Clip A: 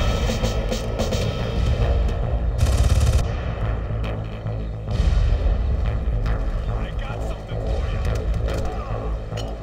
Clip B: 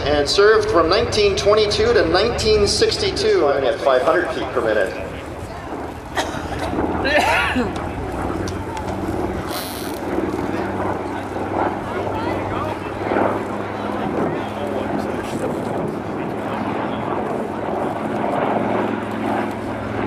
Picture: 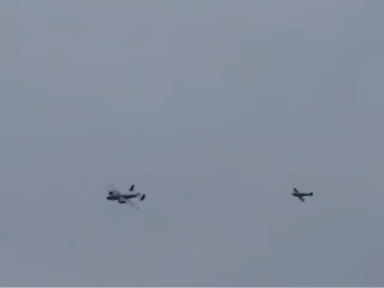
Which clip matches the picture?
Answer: B